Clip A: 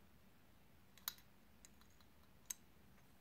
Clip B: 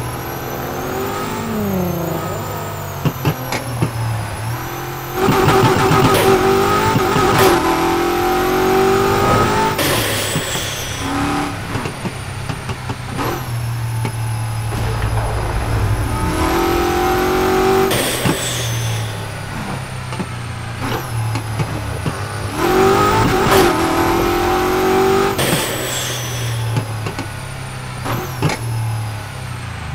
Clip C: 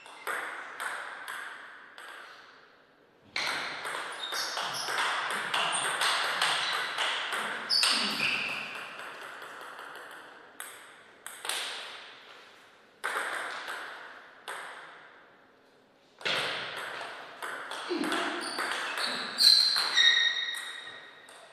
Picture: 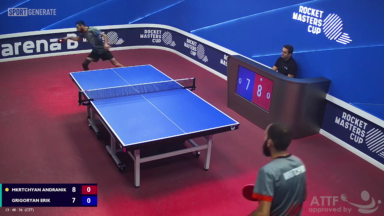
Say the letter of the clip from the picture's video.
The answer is C